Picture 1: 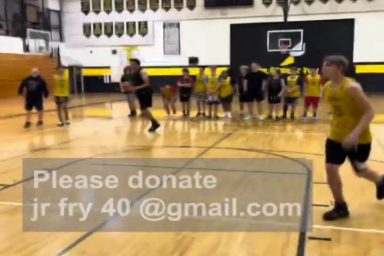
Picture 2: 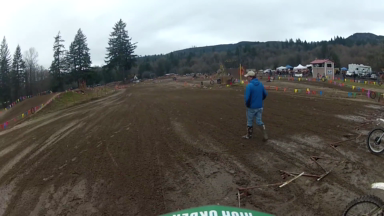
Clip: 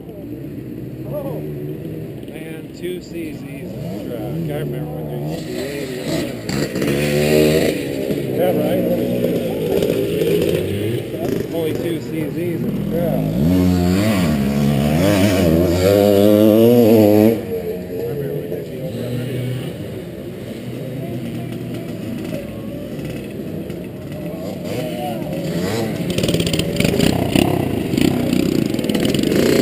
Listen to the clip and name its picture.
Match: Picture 2